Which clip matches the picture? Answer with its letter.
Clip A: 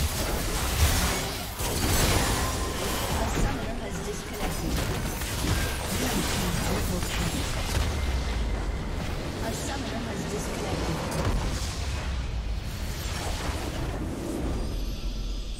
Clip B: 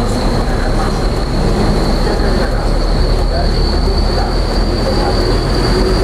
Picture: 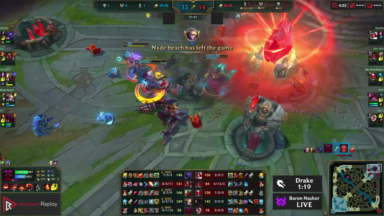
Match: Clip A